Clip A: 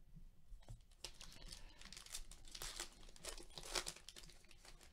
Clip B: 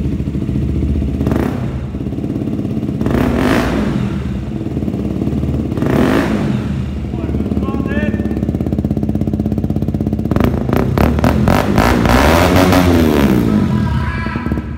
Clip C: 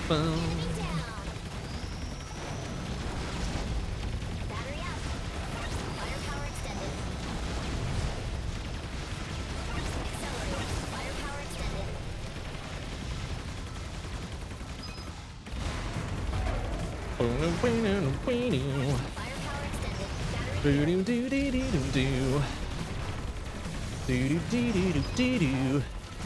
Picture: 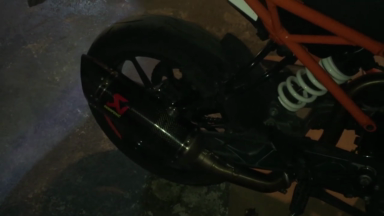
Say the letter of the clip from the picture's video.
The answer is B